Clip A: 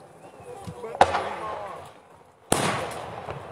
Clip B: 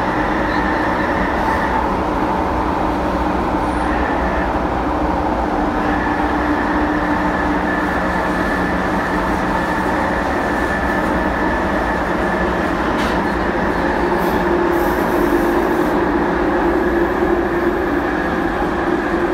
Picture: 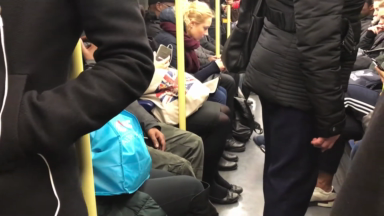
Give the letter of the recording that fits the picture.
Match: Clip B